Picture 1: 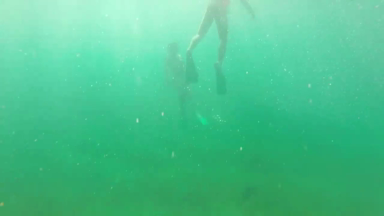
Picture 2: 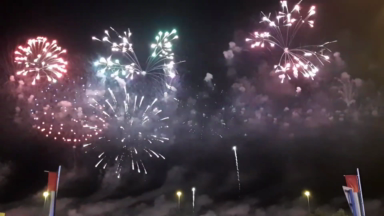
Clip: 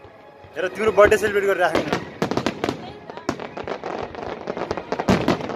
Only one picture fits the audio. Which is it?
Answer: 2